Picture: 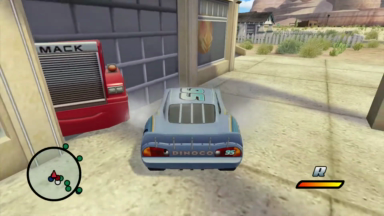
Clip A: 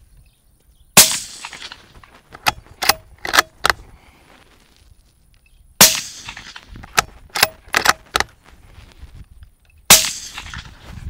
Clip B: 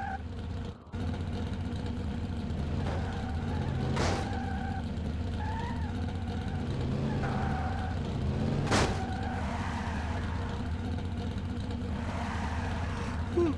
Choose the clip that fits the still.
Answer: B